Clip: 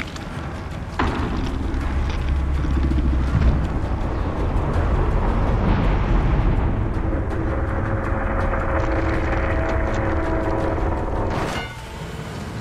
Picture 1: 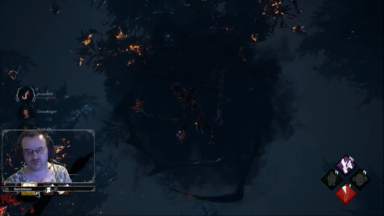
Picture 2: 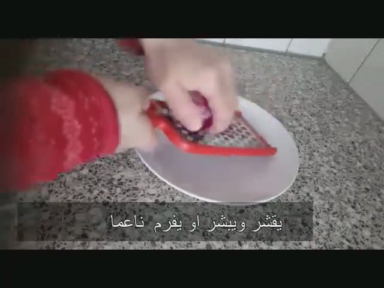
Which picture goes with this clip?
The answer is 1